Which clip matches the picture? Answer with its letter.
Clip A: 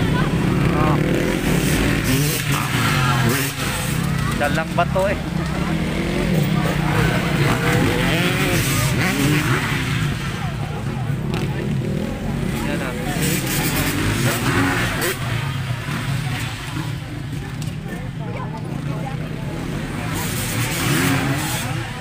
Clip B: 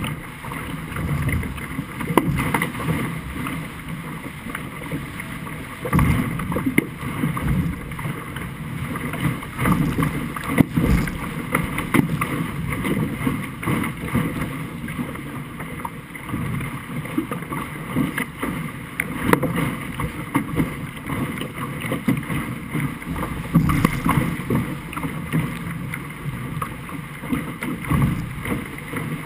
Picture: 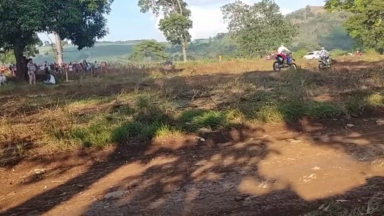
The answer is A